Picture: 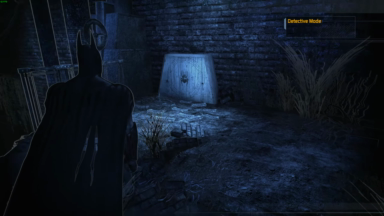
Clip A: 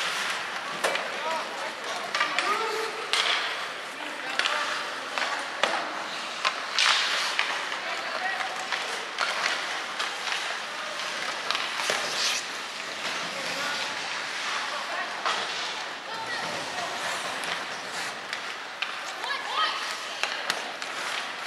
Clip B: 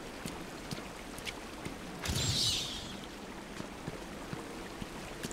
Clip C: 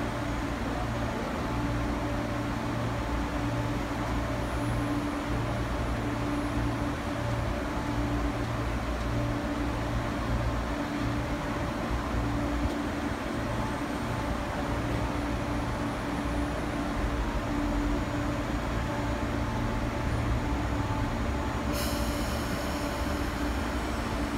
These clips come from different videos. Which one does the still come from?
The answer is B